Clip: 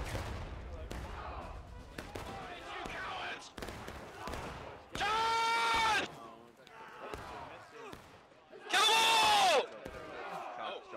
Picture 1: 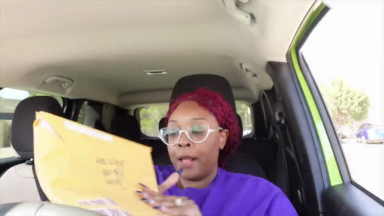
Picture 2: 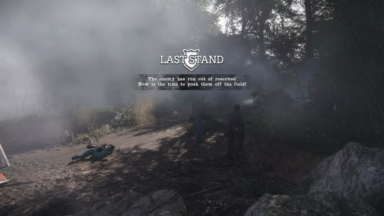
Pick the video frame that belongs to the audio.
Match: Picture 2